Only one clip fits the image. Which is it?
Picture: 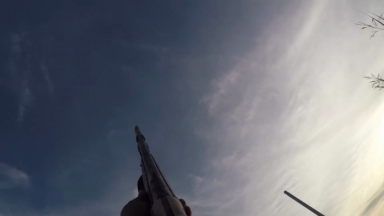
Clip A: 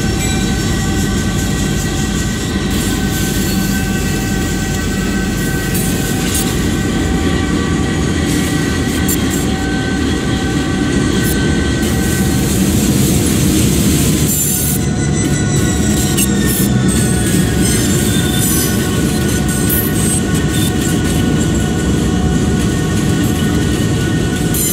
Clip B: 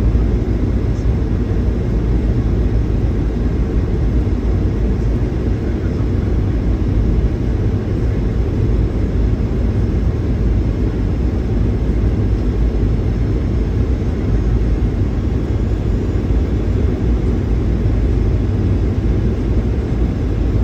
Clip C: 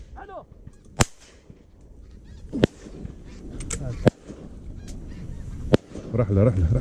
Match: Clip C